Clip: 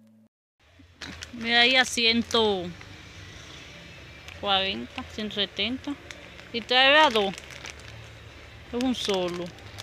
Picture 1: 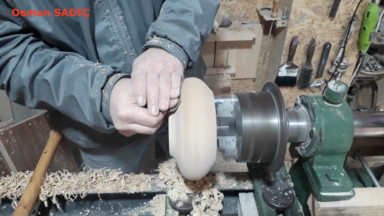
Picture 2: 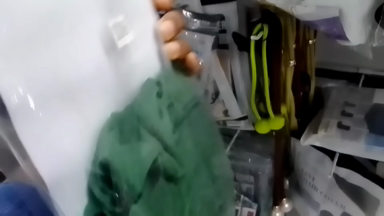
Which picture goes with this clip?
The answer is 2